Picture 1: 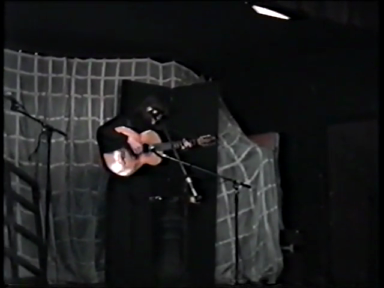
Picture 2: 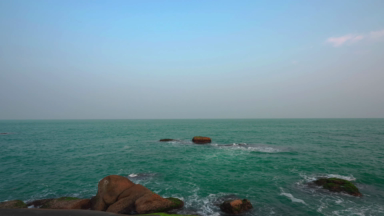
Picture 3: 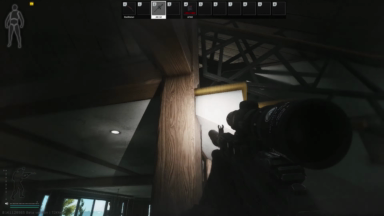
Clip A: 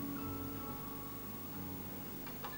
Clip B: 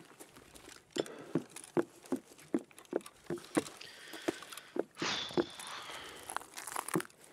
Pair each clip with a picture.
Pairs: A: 1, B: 3